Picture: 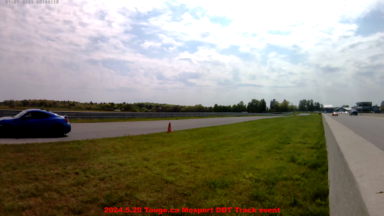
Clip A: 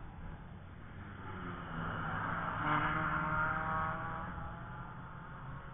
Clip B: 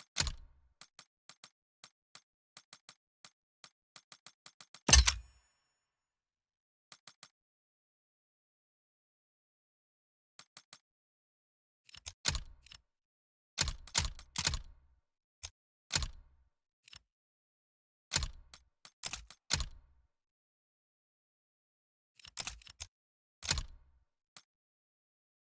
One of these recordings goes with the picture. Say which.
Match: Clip A